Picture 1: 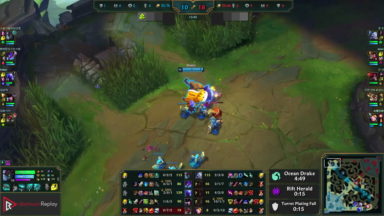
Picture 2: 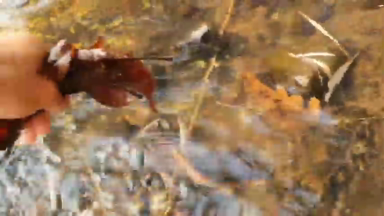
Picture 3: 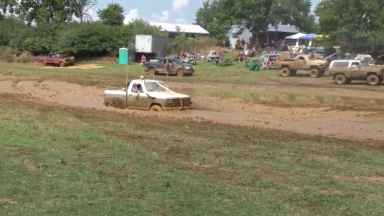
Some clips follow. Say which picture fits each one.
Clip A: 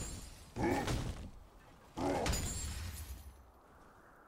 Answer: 1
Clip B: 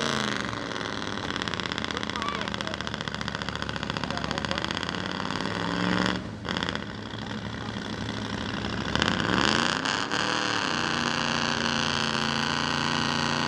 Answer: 3